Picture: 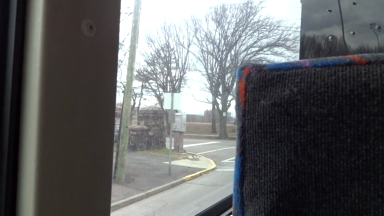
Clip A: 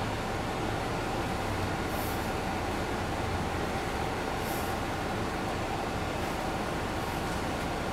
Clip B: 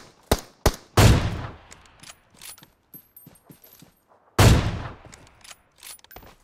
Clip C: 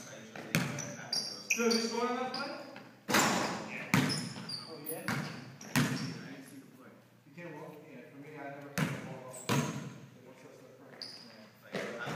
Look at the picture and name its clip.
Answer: A